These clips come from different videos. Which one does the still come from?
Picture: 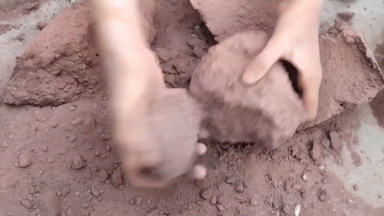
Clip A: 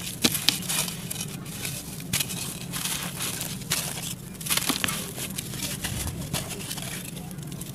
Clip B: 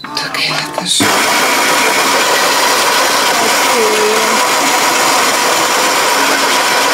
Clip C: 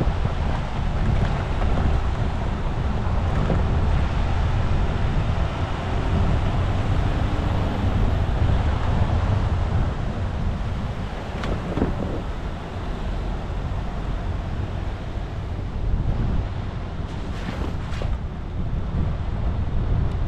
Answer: A